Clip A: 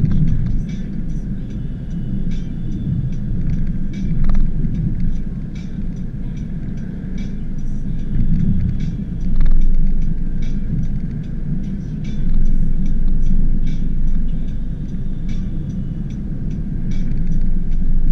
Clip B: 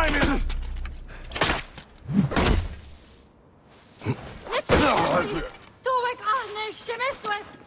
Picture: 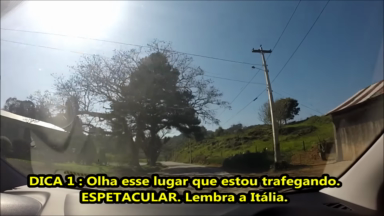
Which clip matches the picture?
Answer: A